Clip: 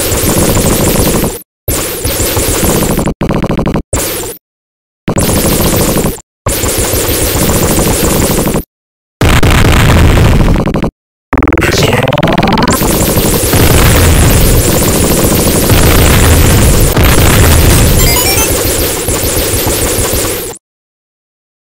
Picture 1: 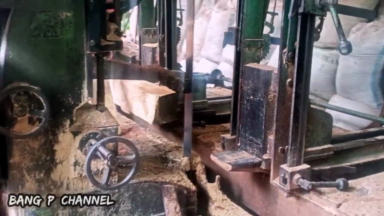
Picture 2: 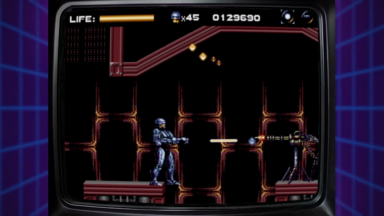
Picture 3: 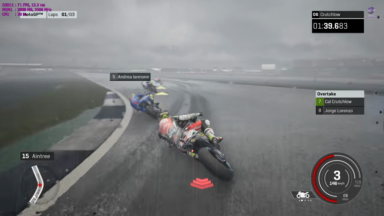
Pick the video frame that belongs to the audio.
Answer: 2